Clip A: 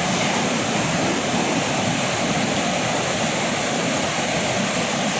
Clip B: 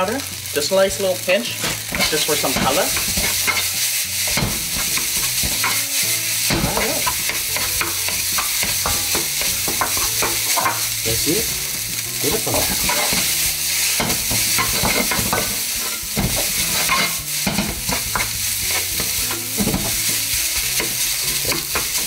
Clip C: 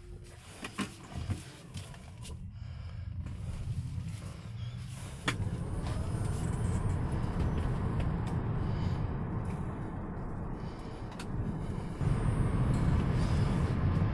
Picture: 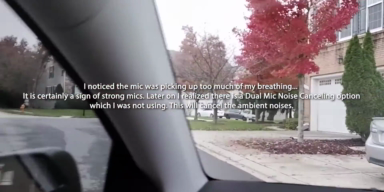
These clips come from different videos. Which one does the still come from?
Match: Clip C